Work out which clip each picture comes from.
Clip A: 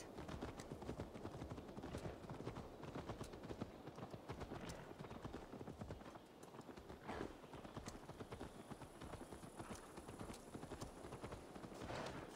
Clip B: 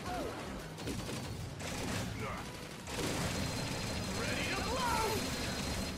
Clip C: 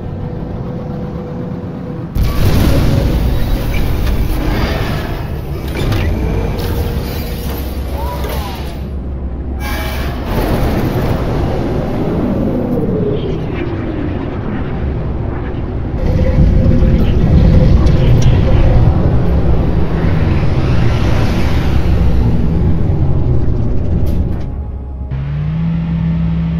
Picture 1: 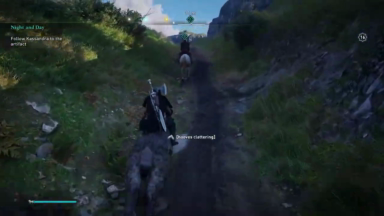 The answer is A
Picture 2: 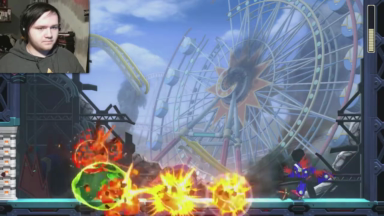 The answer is B